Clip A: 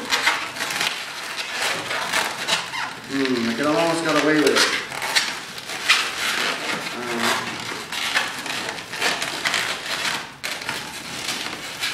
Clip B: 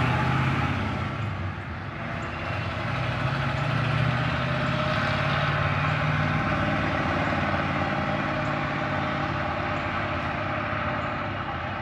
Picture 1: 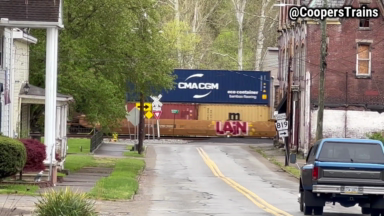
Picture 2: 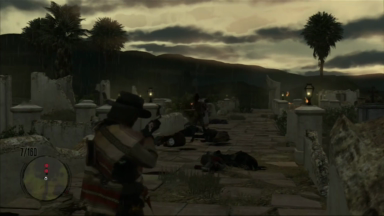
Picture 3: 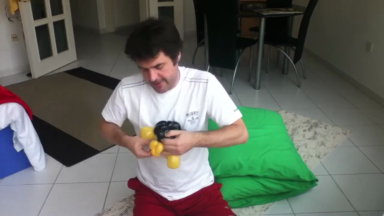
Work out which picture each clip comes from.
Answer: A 3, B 1